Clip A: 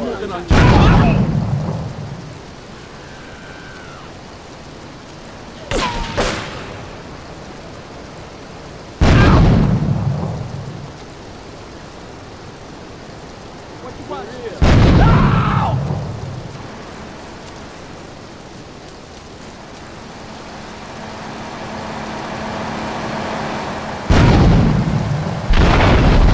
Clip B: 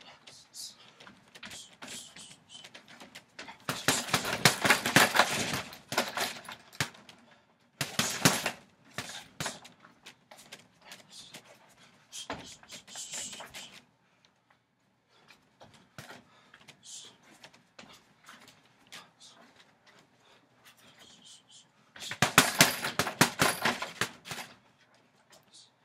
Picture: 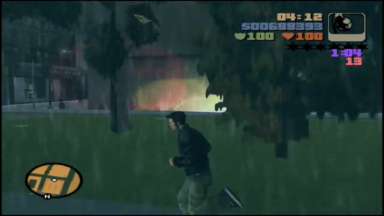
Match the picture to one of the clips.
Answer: A